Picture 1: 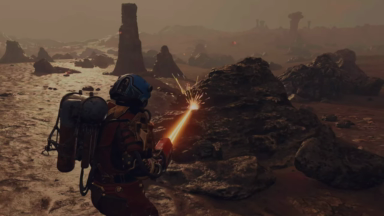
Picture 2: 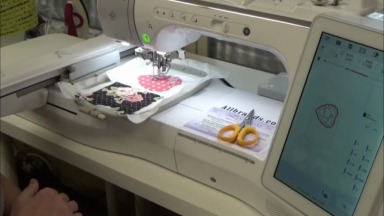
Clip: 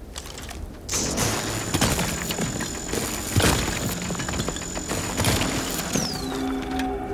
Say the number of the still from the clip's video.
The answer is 1